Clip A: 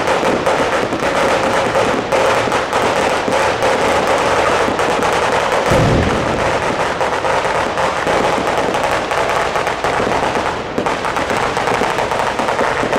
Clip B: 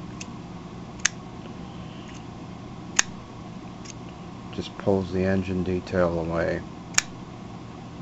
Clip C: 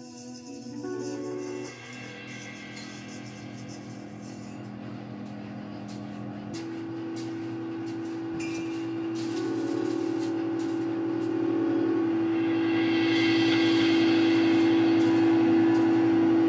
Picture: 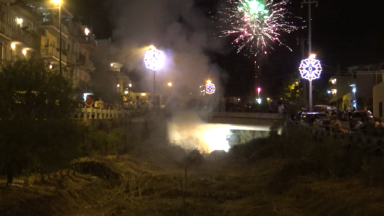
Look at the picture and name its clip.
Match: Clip A